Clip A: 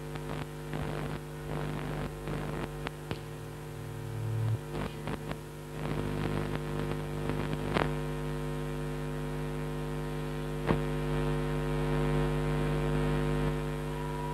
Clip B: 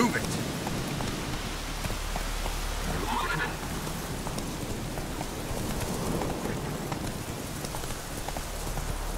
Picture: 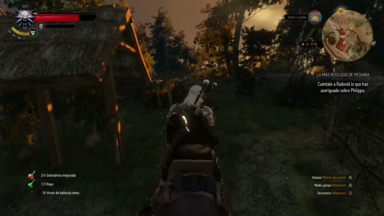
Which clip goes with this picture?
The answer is B